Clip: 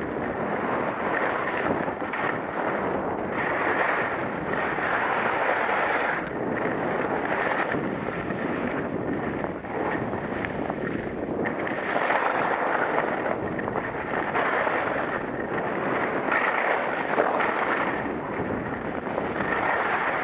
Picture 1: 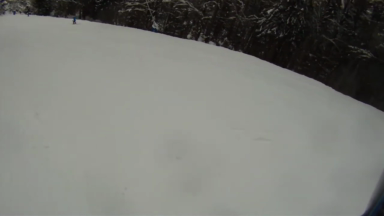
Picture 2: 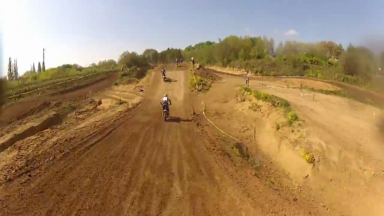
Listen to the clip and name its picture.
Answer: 1